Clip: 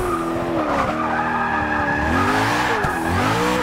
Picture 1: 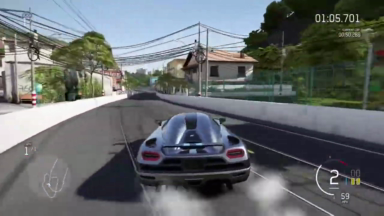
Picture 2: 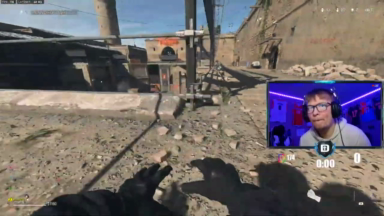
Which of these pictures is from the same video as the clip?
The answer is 1